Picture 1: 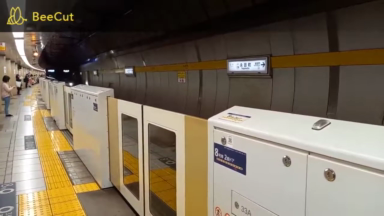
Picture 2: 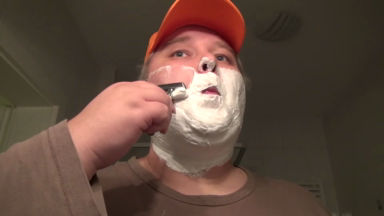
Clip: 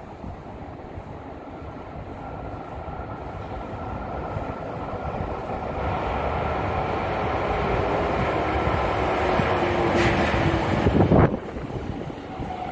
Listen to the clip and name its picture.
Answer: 1